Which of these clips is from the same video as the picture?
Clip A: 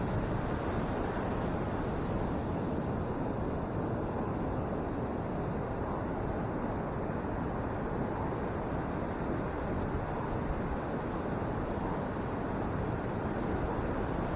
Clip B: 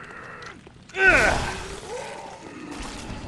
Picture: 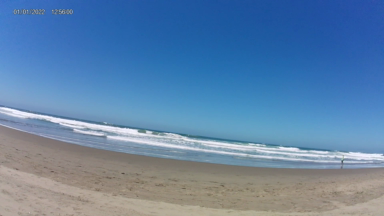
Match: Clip A